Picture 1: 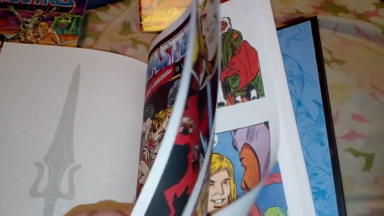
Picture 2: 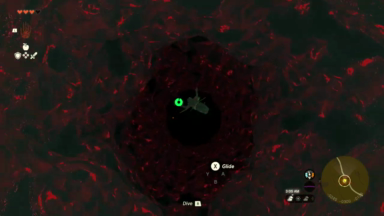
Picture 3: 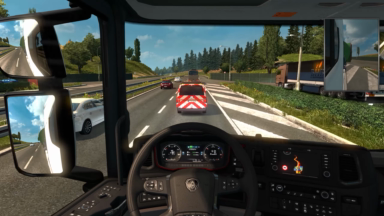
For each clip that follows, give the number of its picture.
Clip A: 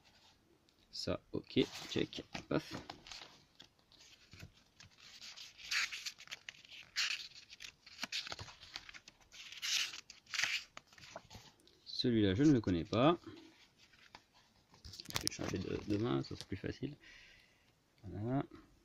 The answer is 1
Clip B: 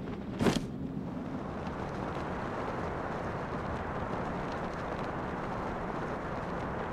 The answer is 2